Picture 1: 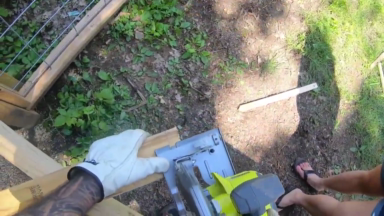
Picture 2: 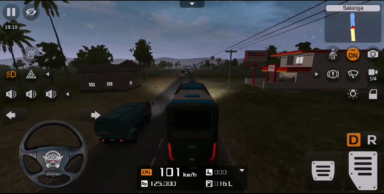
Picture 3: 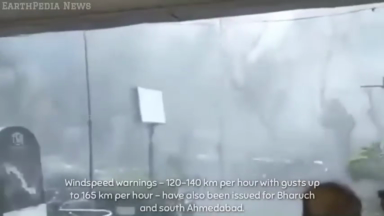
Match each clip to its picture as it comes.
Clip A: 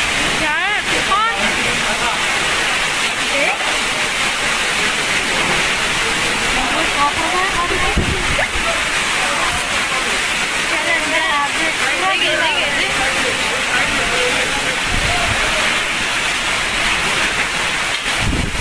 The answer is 3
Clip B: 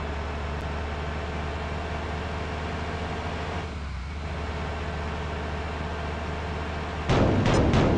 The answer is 2